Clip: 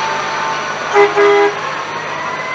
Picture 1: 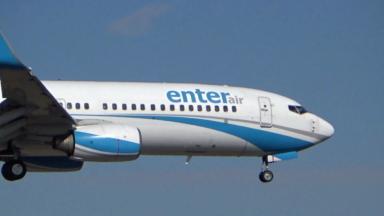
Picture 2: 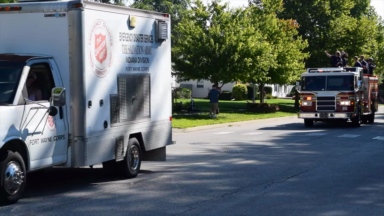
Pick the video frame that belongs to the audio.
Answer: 2